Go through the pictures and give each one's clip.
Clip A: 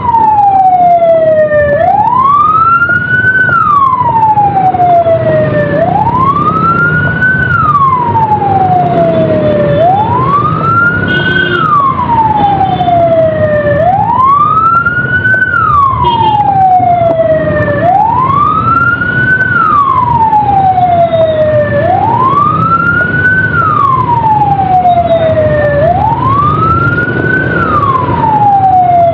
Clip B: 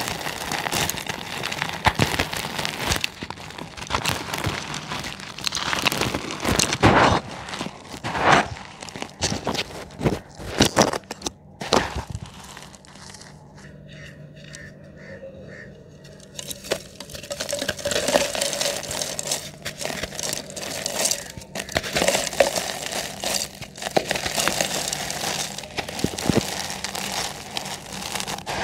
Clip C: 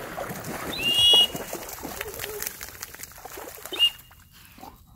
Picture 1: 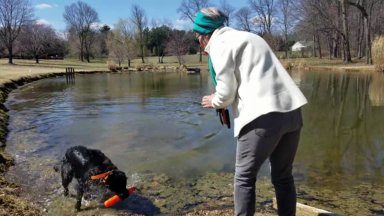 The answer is C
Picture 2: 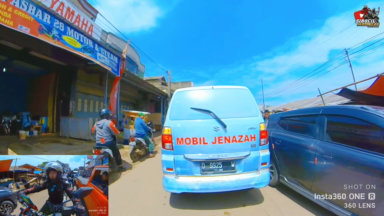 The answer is A